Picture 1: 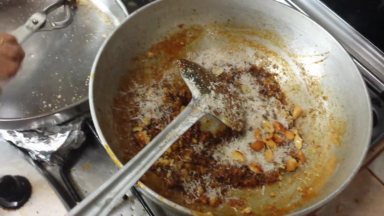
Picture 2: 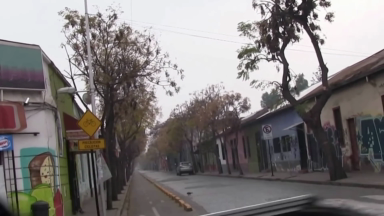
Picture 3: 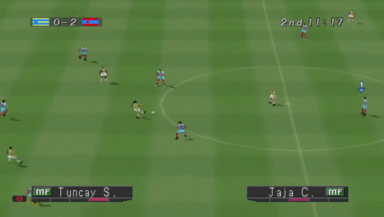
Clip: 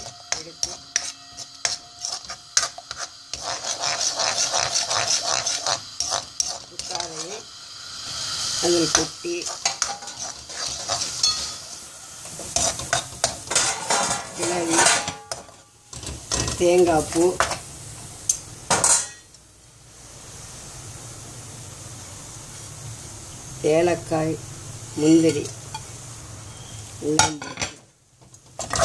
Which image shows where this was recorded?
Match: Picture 1